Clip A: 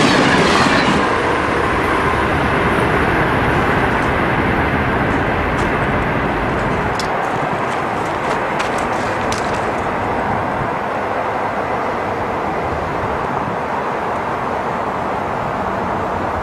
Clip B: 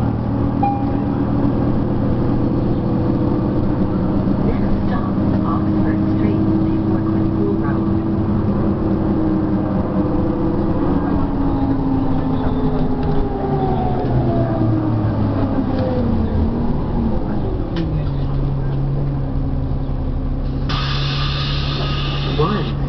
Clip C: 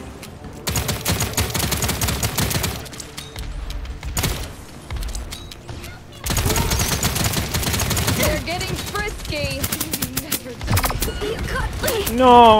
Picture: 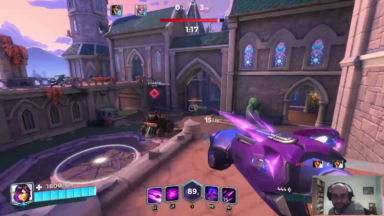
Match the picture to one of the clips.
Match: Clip C